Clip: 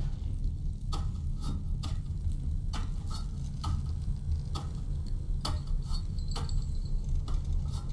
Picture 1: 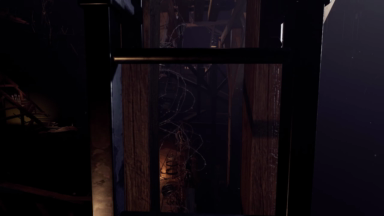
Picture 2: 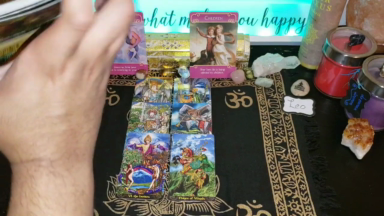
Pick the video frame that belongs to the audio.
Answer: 1